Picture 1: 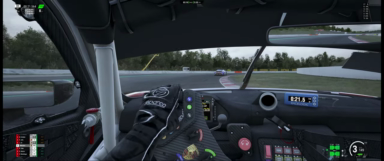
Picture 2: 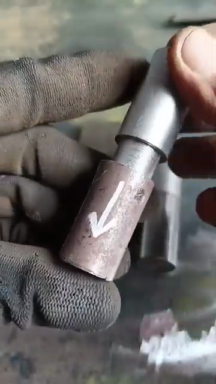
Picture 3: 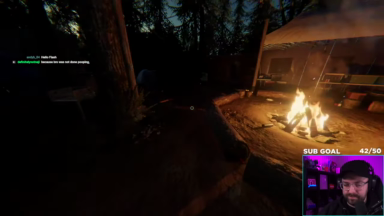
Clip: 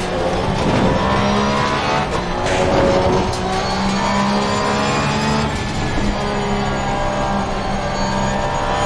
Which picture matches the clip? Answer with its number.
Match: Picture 1